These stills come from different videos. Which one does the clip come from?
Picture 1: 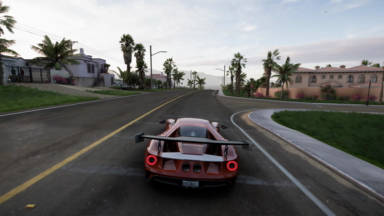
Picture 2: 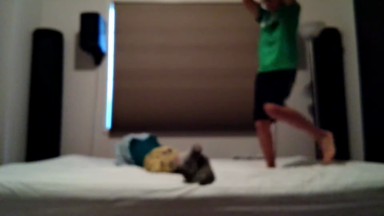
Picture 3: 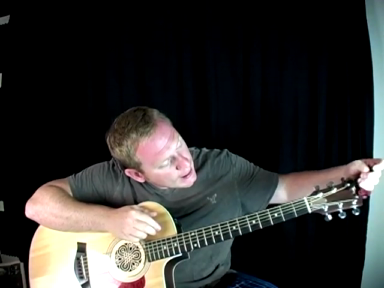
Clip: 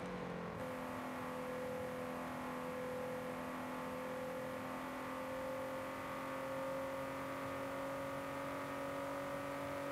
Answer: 1